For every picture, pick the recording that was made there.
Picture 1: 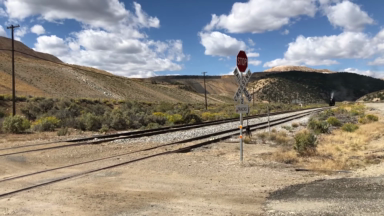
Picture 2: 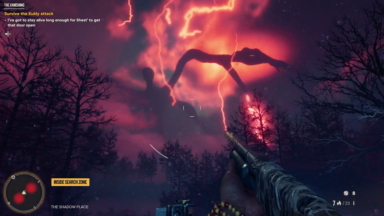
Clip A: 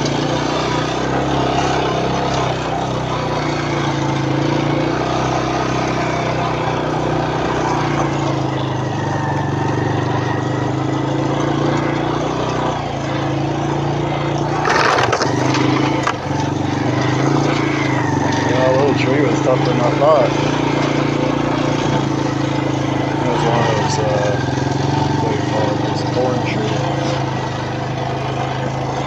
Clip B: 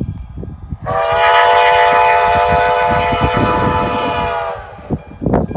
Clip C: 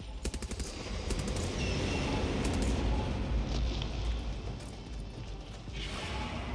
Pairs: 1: B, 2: C